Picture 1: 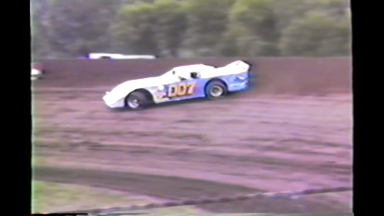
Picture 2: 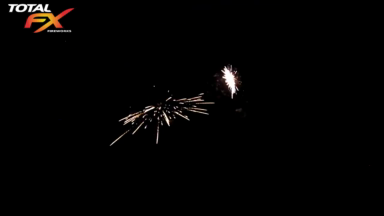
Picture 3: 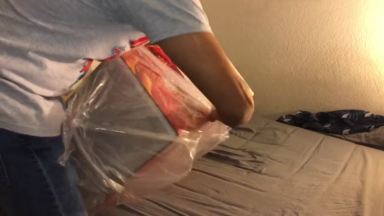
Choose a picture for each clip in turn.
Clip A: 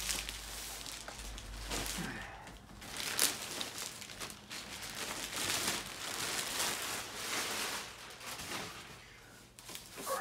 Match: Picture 3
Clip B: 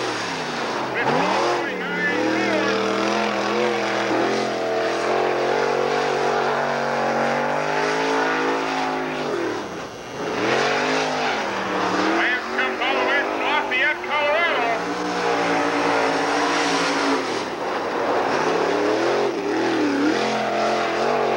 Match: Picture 1